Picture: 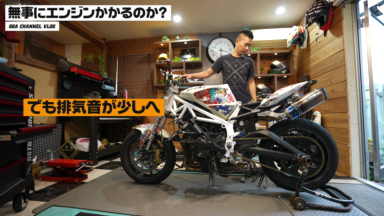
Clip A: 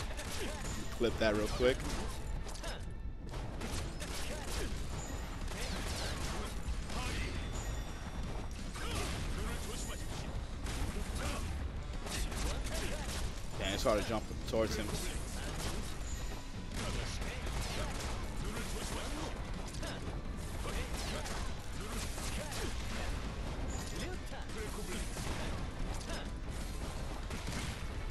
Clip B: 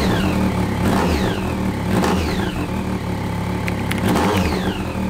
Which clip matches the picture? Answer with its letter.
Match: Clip B